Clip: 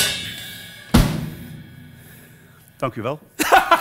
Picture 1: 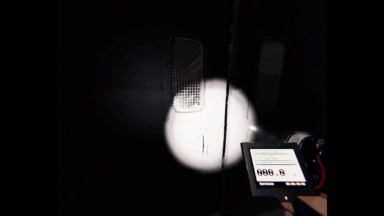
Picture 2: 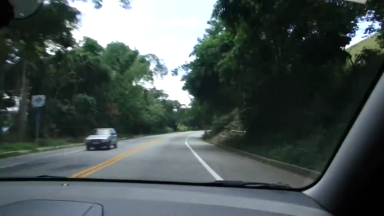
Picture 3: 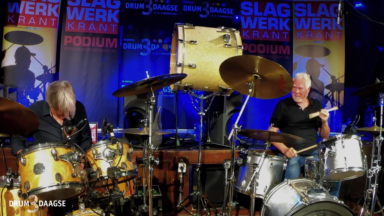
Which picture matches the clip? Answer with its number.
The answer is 3